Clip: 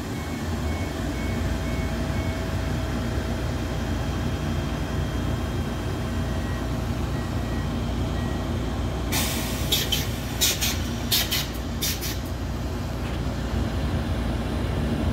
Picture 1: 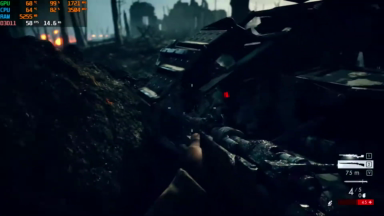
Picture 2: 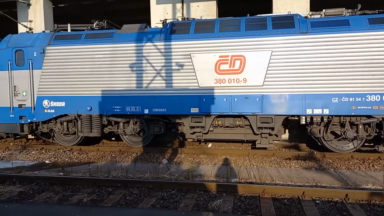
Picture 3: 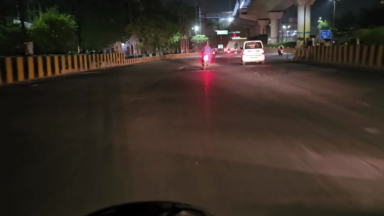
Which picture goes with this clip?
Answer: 2